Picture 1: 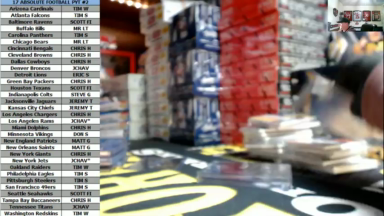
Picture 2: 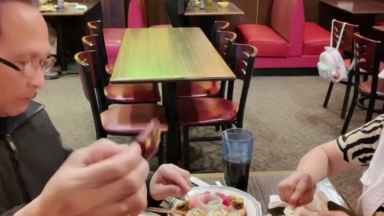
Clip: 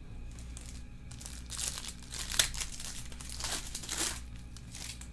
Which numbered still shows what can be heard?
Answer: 1